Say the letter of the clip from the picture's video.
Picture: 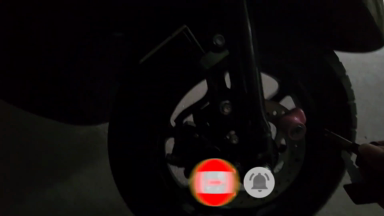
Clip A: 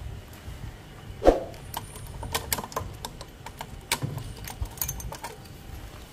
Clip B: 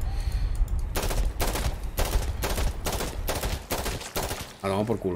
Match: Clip A